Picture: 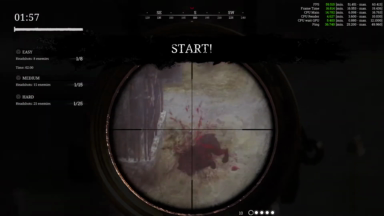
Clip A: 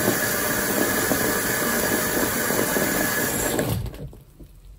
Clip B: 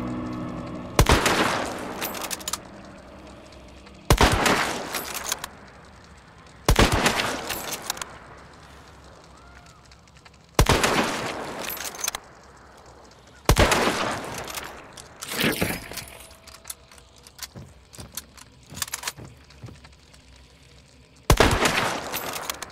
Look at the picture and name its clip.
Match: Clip B